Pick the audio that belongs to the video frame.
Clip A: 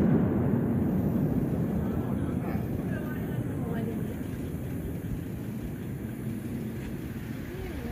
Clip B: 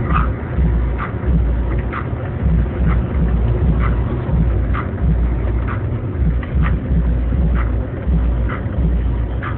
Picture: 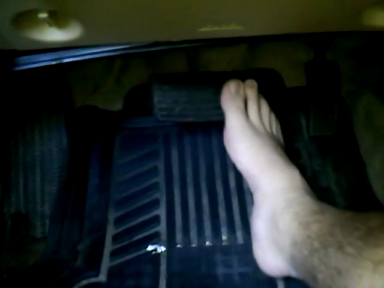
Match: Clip B